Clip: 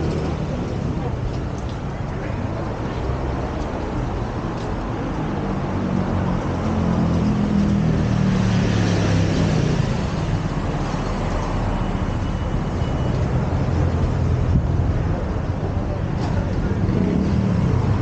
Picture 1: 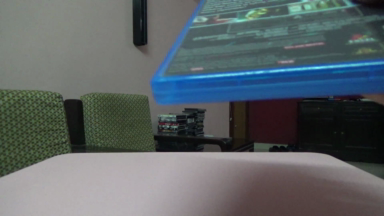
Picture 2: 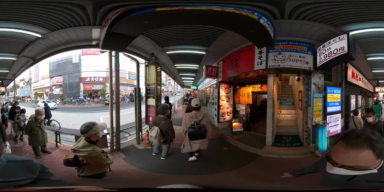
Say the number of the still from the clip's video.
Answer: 2